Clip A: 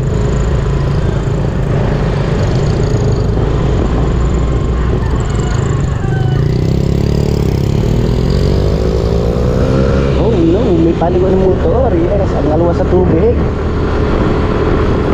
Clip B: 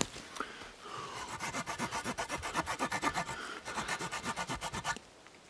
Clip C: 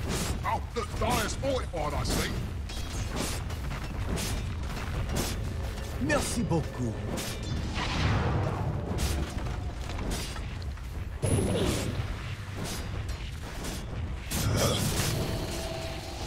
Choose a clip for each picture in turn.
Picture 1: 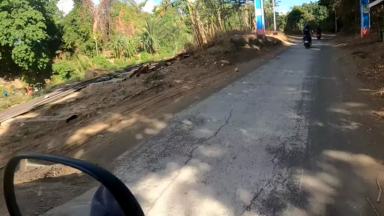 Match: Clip A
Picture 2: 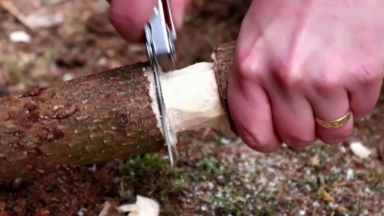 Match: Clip B